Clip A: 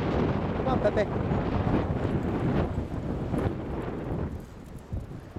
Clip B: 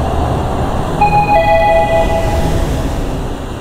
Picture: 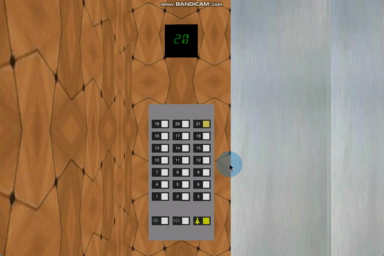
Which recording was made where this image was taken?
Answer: B